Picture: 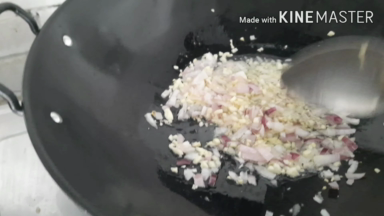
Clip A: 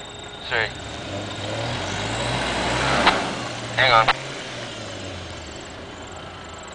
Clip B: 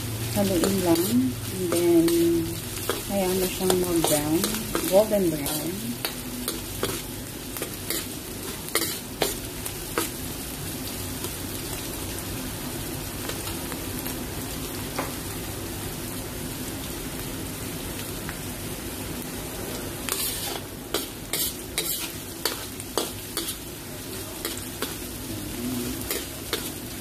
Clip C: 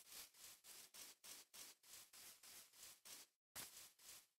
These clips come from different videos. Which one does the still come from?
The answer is B